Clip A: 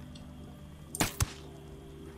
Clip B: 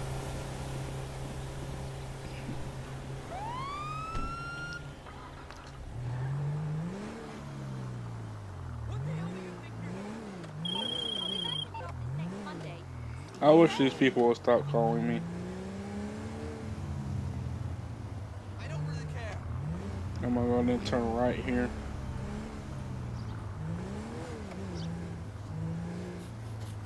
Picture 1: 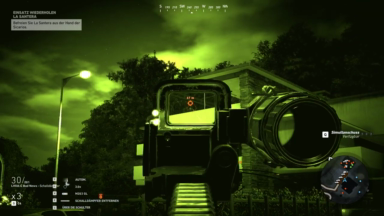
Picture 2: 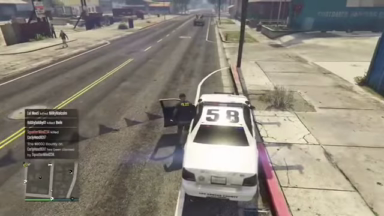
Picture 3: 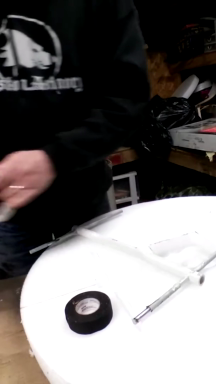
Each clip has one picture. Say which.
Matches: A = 1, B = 2